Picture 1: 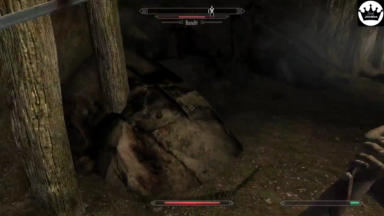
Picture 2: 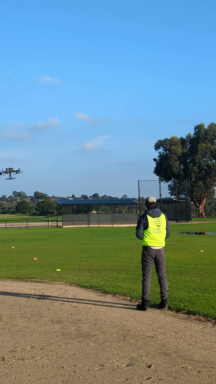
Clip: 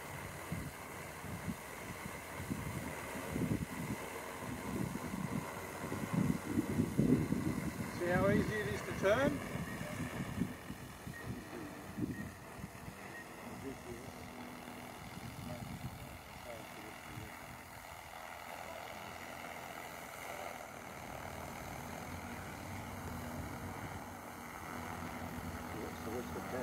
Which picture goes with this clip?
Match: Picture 2